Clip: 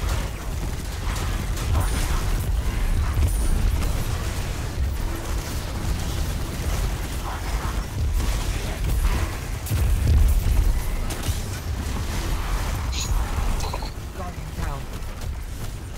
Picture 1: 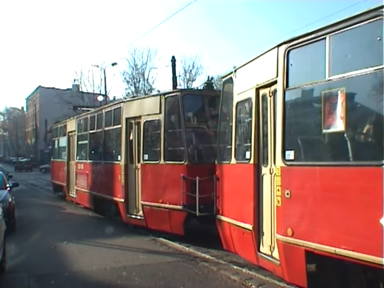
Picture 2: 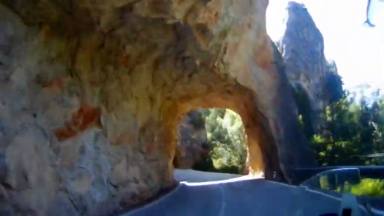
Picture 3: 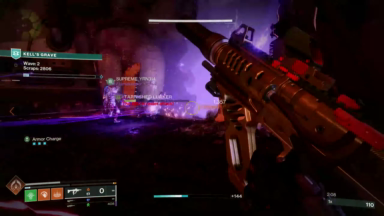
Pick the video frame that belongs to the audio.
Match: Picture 3